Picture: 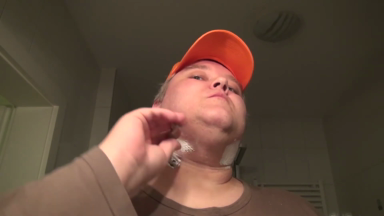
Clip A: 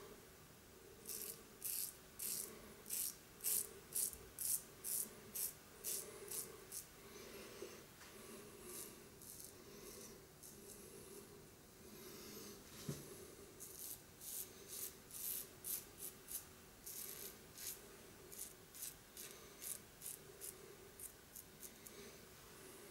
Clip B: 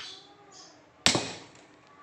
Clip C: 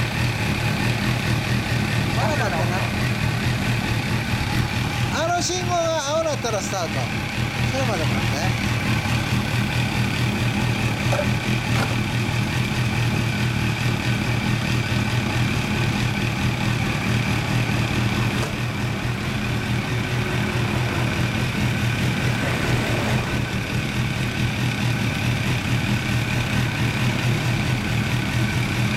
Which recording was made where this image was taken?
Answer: A